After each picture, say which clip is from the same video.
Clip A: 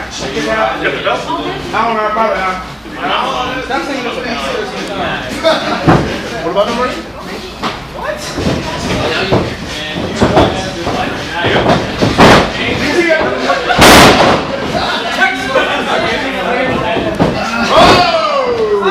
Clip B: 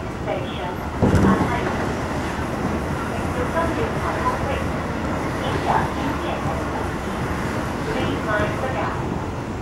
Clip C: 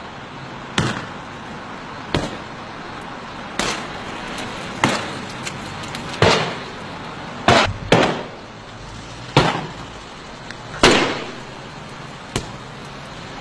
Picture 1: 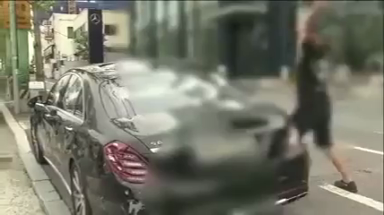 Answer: C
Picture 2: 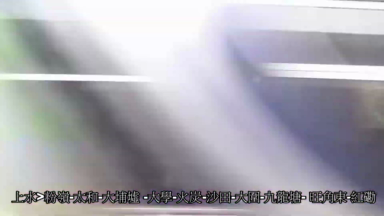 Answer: B